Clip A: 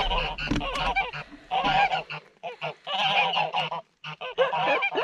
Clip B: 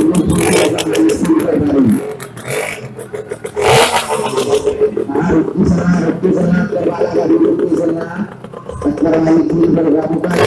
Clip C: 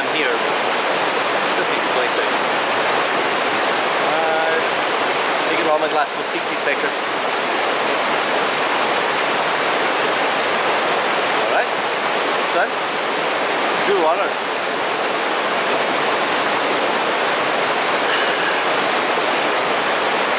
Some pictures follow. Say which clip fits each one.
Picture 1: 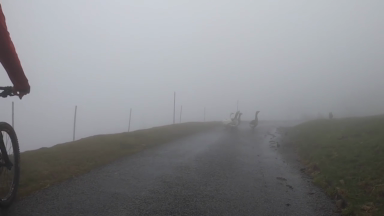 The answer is A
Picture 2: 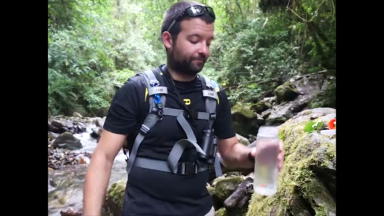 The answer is C